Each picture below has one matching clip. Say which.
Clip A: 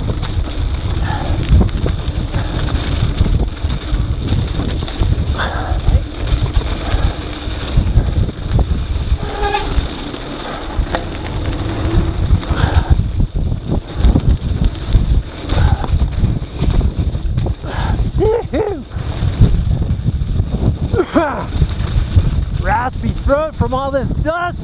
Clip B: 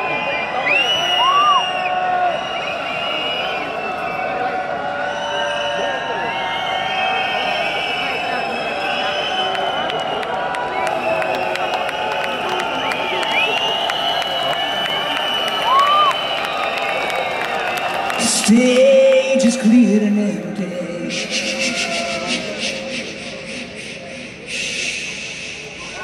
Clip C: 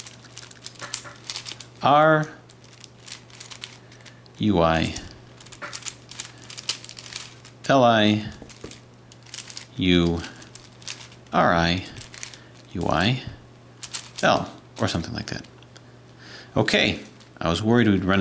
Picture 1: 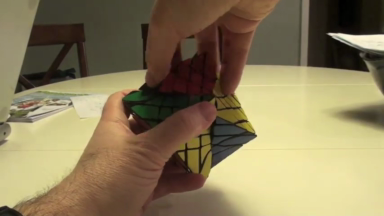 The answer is C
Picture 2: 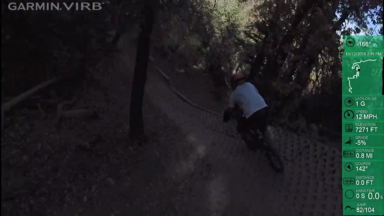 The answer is A